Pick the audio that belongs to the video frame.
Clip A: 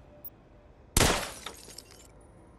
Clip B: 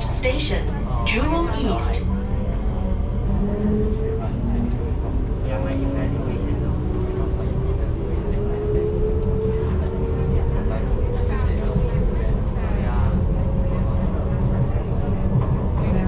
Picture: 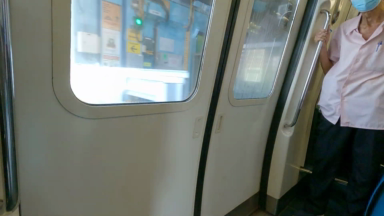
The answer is B